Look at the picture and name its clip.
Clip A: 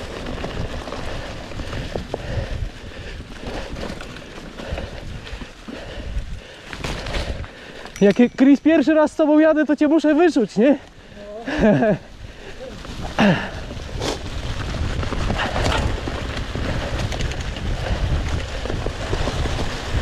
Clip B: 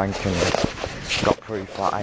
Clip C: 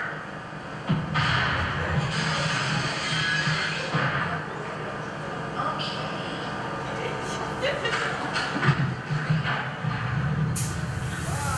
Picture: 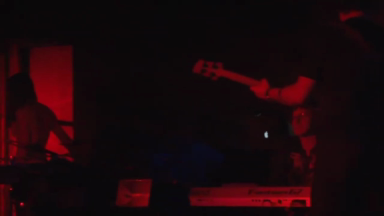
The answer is C